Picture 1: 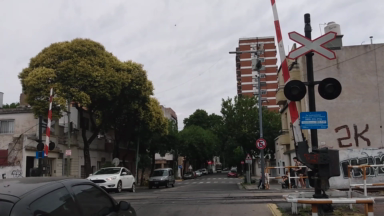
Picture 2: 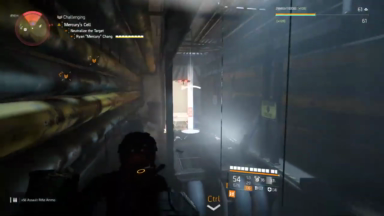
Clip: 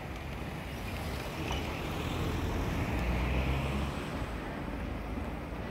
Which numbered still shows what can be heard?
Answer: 1